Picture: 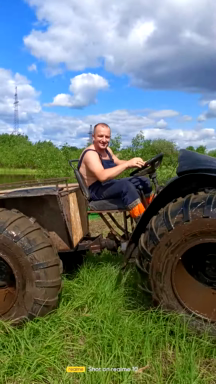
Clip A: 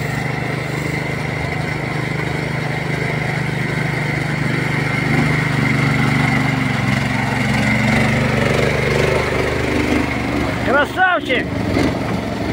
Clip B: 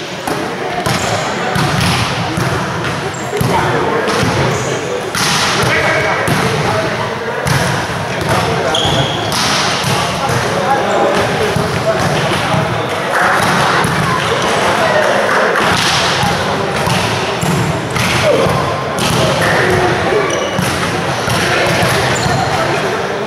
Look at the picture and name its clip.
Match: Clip A